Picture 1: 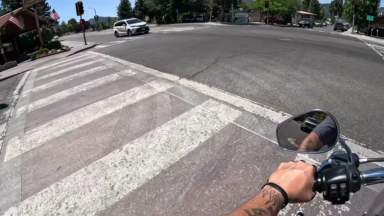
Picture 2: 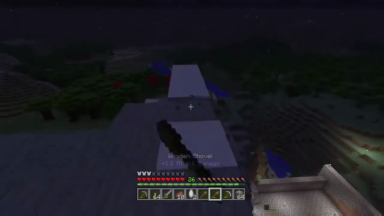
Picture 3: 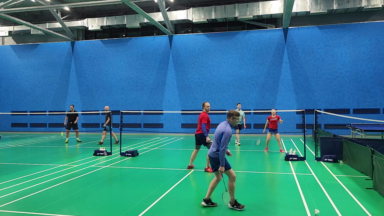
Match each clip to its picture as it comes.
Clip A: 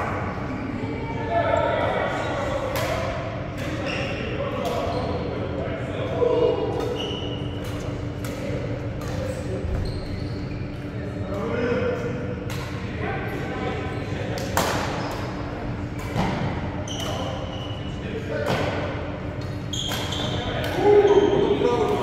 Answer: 3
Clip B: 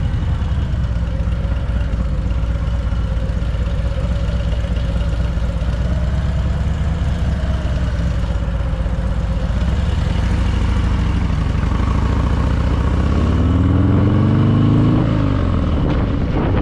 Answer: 1